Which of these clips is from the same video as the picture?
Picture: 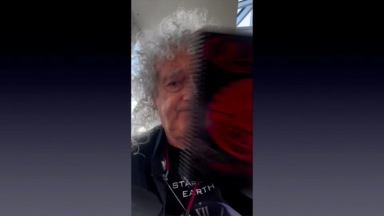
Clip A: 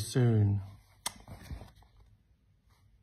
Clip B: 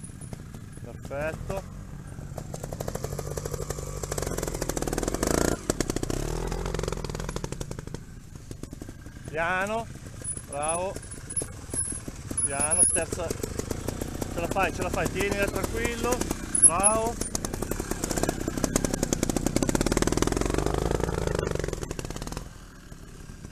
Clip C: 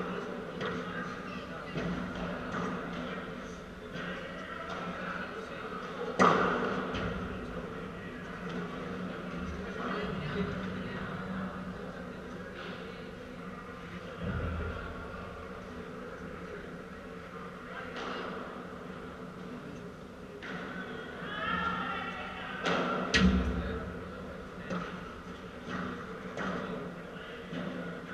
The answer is A